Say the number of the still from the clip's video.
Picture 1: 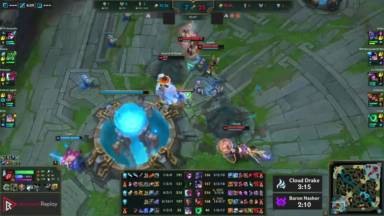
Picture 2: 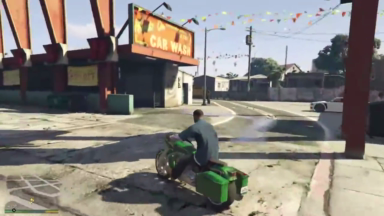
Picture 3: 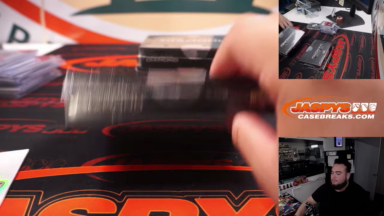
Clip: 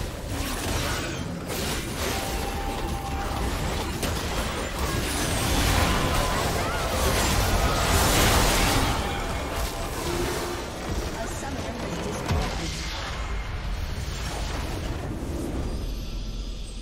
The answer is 1